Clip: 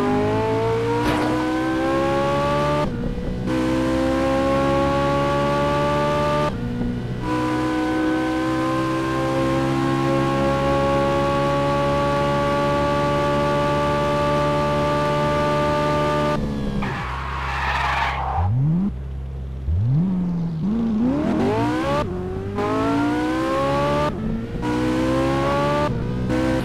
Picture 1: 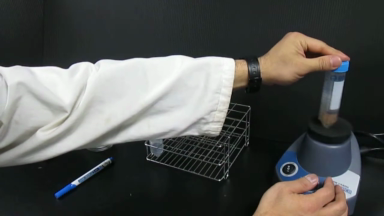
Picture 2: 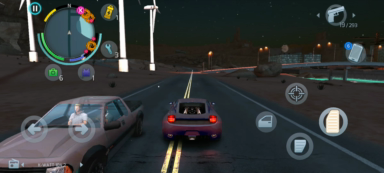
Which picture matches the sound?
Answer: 2